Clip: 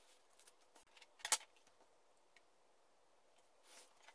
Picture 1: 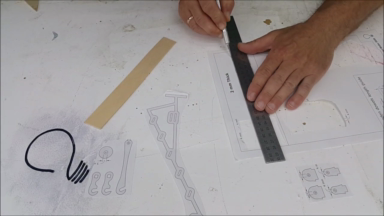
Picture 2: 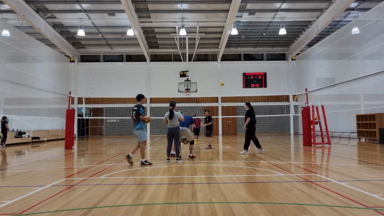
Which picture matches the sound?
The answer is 1